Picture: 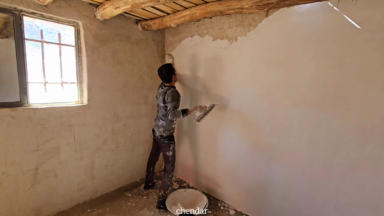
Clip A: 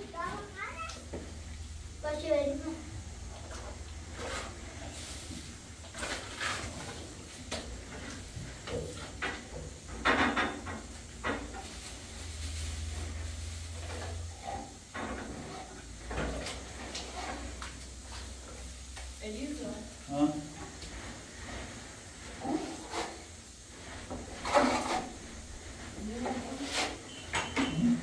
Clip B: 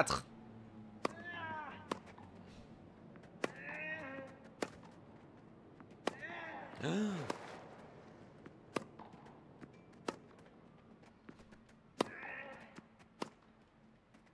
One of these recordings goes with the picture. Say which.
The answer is A